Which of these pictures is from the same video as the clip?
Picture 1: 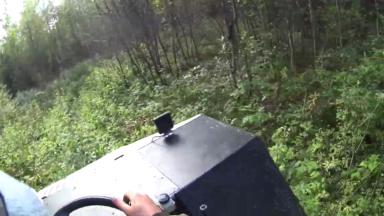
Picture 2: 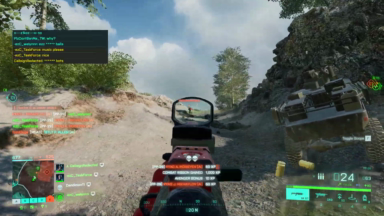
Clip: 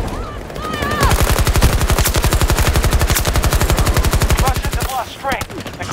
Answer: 2